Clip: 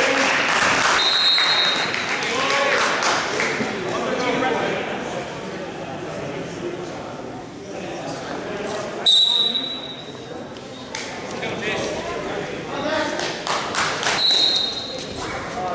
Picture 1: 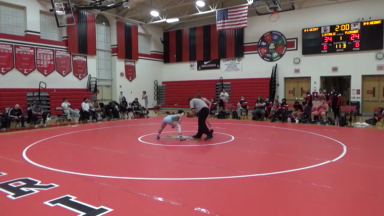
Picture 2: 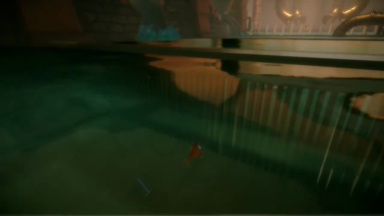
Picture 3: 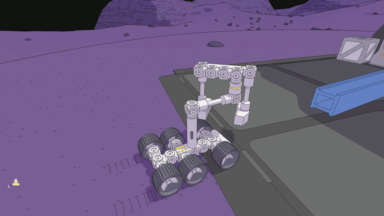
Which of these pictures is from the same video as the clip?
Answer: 1